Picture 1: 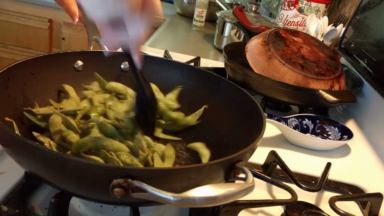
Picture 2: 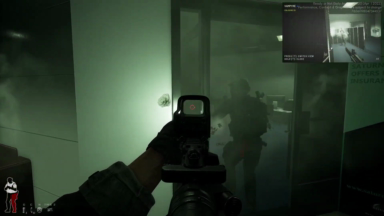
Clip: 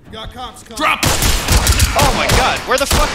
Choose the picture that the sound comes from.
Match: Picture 2